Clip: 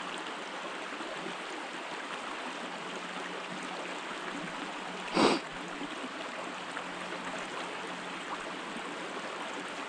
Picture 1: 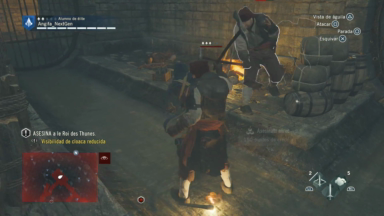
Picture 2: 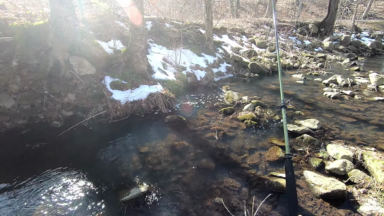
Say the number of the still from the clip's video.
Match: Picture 2